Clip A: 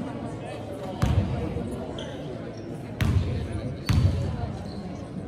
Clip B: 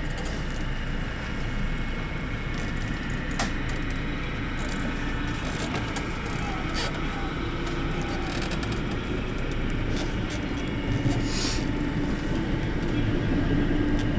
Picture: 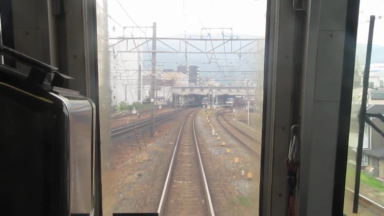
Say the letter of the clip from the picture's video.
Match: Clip B